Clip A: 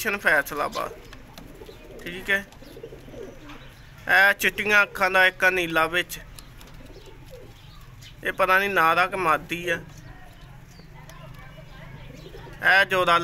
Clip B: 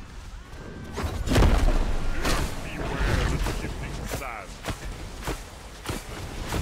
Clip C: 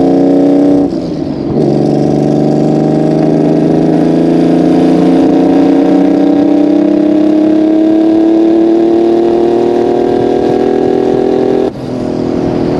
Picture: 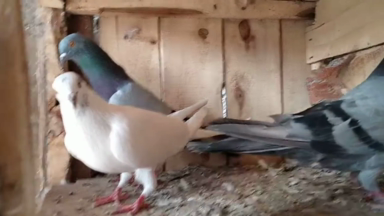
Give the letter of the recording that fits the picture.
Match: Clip A